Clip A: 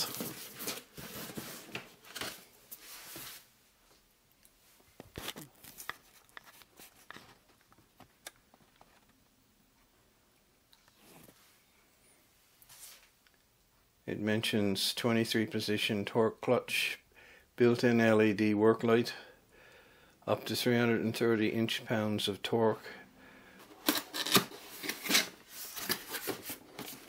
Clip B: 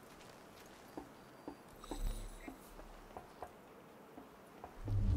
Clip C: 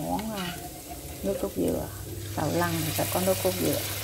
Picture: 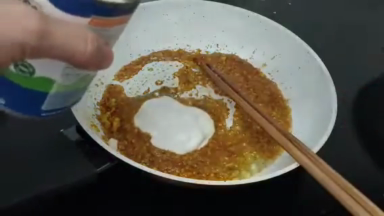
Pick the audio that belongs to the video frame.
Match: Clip C